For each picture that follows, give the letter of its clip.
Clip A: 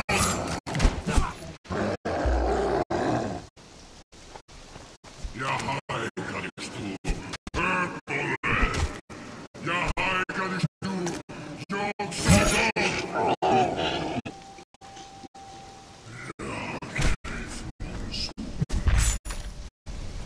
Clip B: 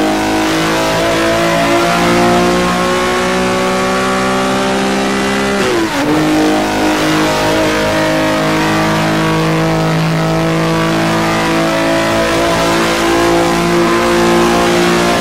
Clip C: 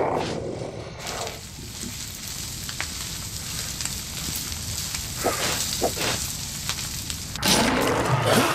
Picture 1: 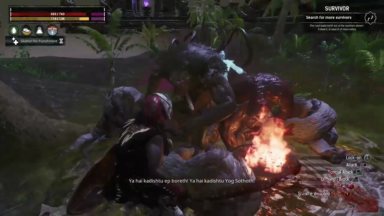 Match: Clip A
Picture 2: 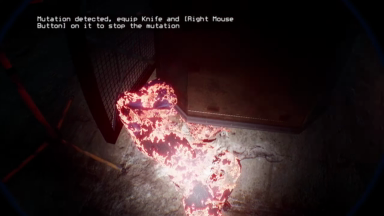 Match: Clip C